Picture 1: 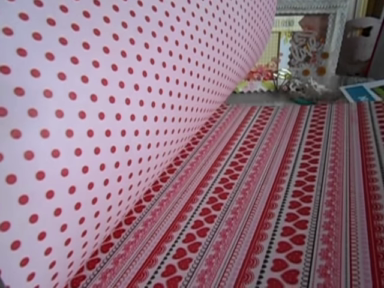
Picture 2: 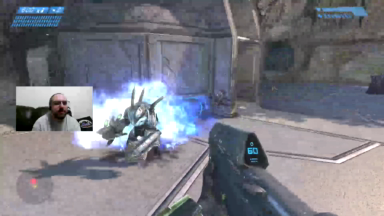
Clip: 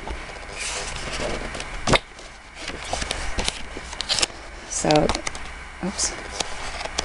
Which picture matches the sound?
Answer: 1